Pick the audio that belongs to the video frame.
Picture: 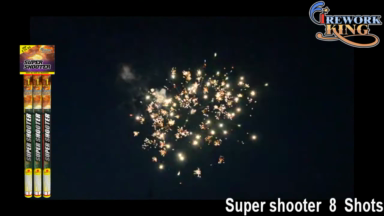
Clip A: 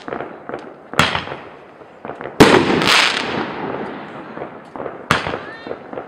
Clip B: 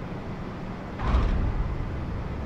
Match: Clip A